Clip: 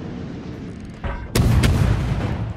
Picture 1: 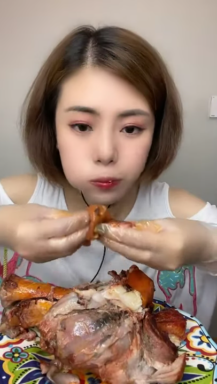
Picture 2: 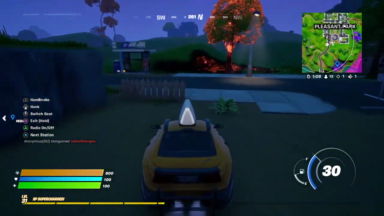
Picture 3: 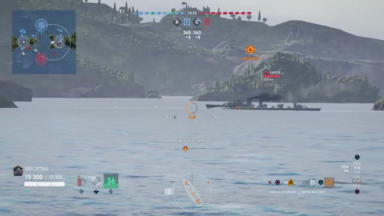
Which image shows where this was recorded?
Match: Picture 3